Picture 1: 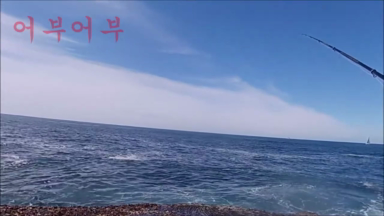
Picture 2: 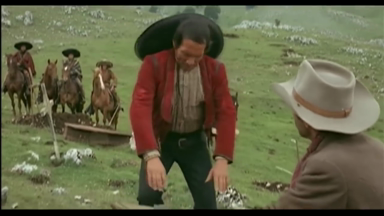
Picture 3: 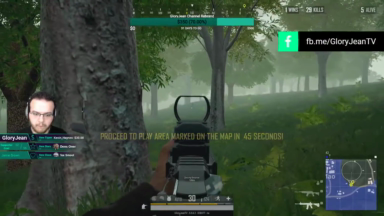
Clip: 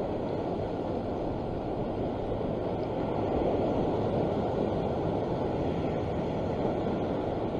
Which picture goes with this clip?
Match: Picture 1